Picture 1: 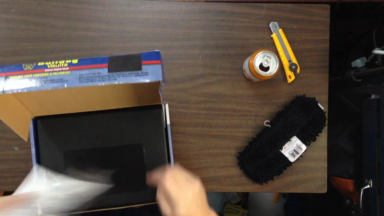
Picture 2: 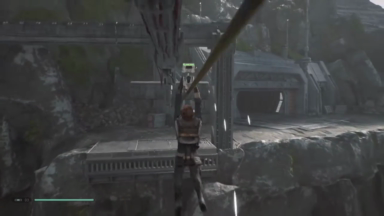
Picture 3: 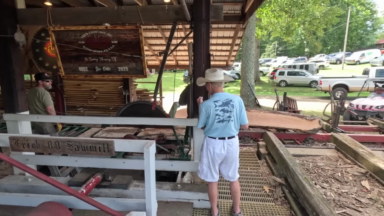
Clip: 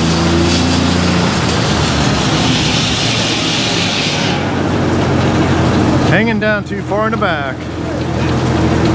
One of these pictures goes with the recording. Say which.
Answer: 3